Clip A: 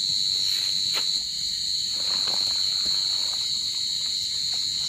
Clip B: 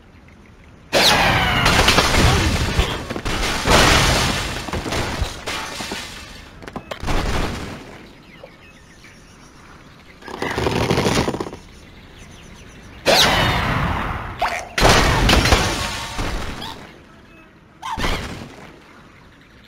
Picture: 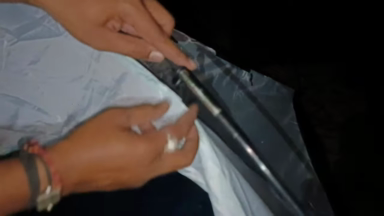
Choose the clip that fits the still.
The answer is A